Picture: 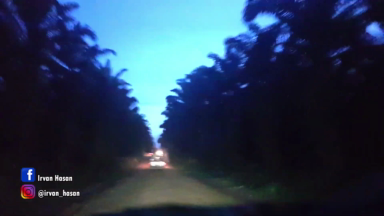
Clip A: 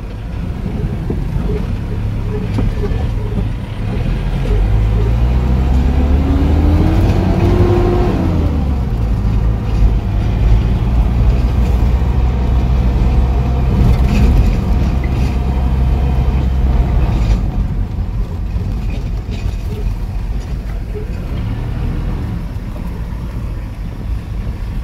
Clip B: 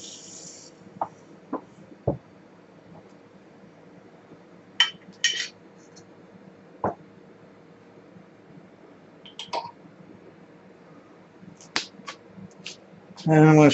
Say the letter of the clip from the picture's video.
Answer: A